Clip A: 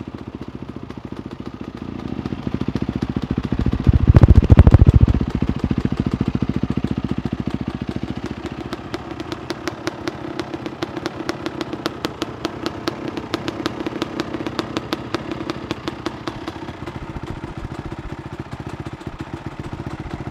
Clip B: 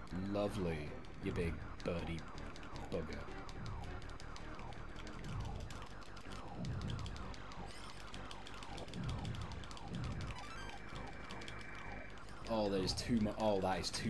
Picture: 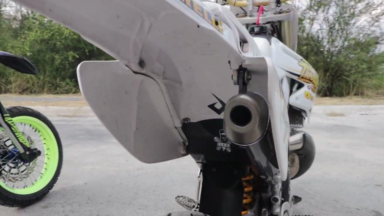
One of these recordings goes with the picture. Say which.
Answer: A